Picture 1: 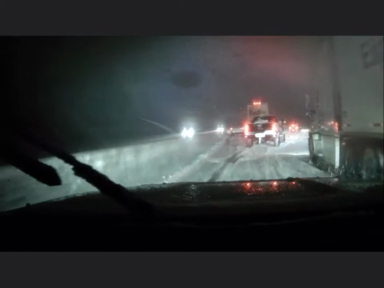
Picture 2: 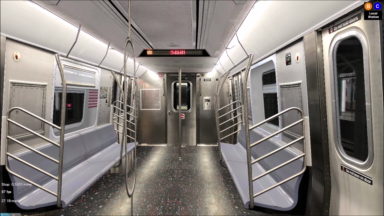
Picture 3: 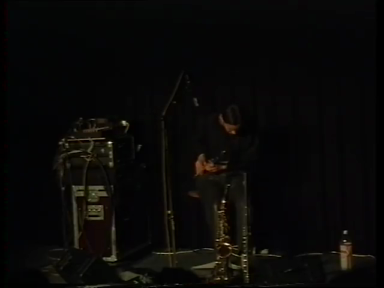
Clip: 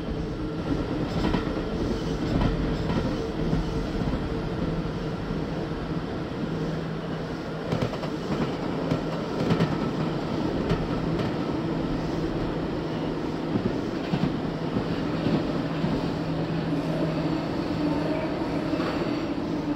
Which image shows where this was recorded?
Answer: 2